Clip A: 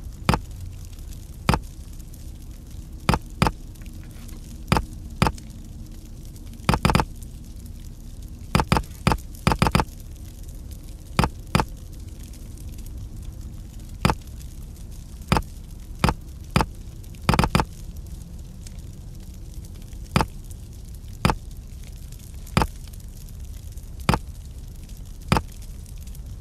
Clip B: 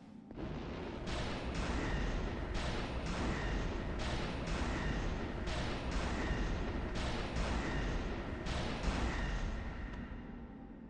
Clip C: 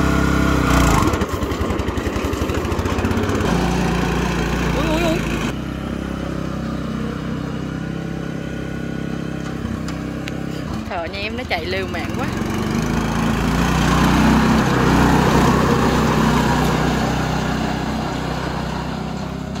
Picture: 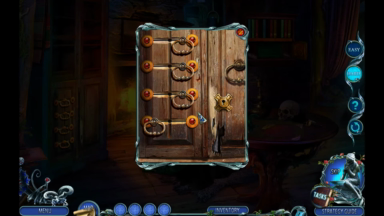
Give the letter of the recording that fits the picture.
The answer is A